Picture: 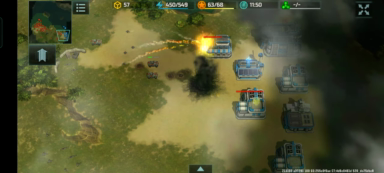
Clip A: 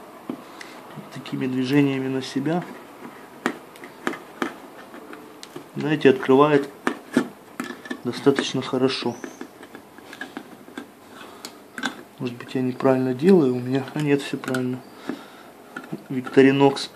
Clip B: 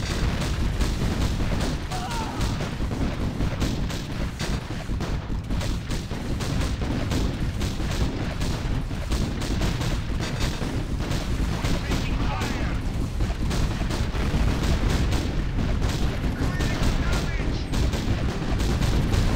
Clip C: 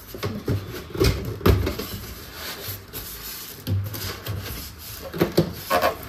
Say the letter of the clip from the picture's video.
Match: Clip B